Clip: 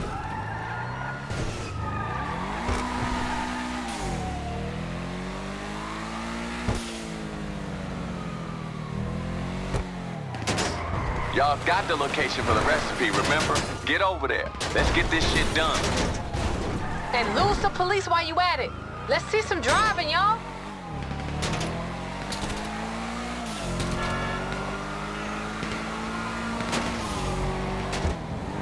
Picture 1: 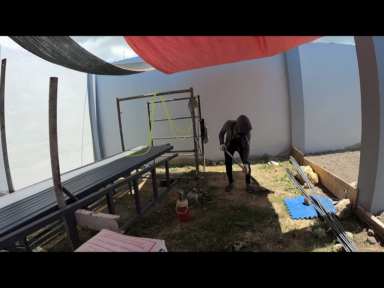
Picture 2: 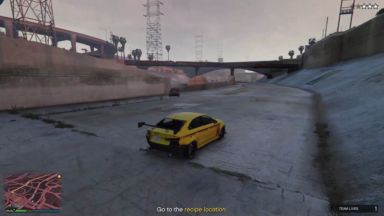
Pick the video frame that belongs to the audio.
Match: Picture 2